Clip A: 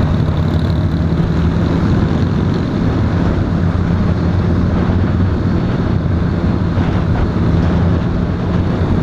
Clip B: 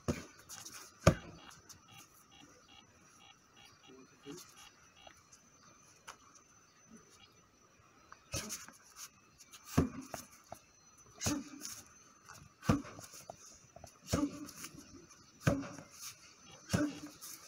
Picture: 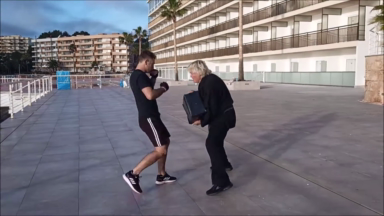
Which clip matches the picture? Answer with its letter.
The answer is B